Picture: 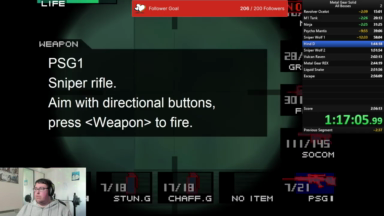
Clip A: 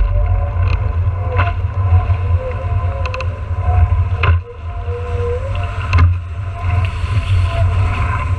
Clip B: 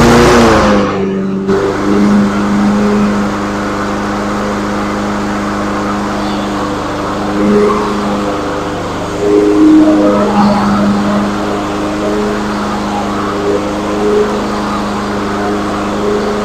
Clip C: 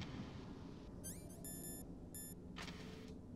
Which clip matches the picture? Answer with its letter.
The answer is C